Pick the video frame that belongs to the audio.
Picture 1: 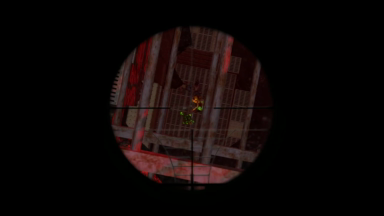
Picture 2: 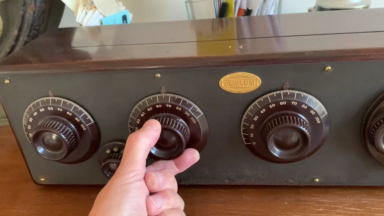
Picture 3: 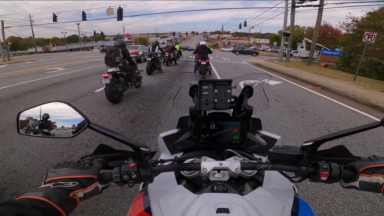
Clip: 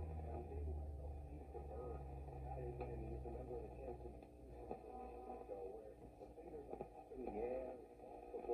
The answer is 2